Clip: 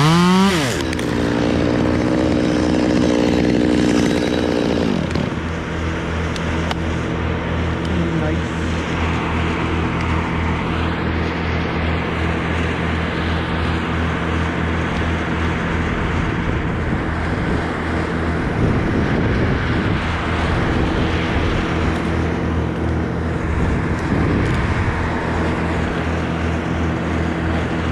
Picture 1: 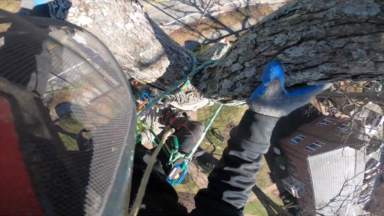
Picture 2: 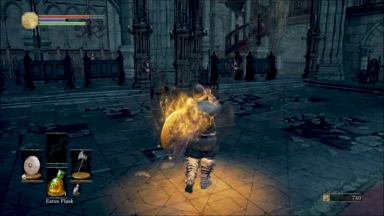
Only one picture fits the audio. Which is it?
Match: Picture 1